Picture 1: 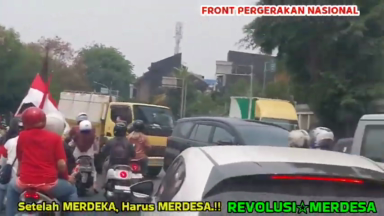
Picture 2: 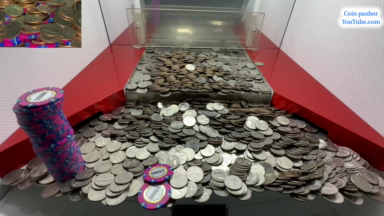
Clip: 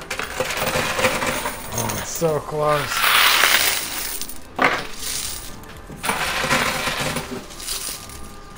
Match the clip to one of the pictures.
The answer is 2